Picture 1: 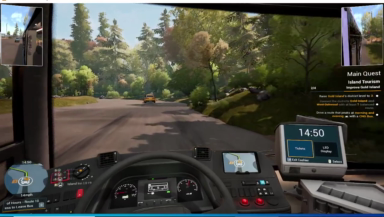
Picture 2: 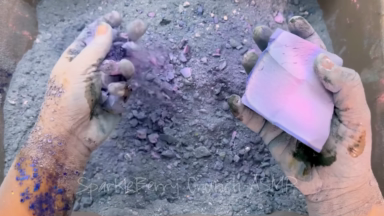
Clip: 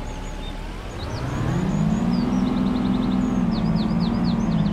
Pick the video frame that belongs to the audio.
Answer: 1